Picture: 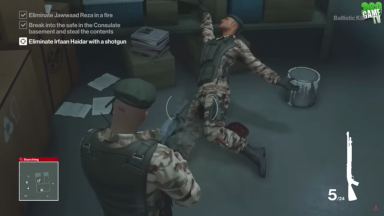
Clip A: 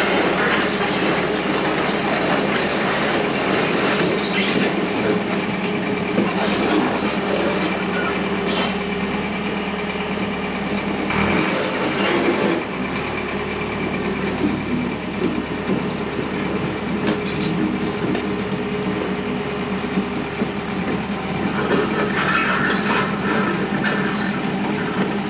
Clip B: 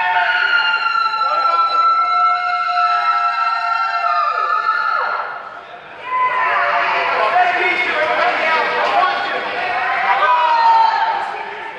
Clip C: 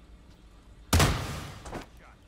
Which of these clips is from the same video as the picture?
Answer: C